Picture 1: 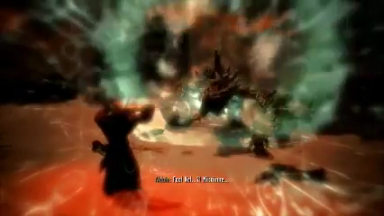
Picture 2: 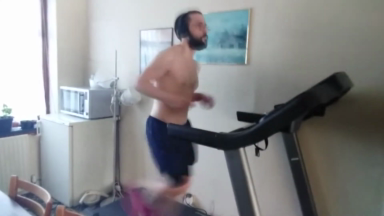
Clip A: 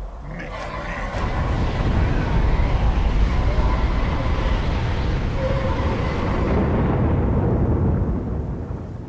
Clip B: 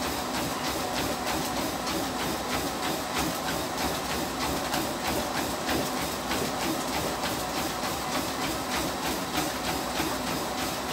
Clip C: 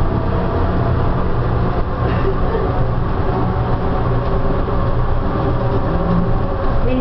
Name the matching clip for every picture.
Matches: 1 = A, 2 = B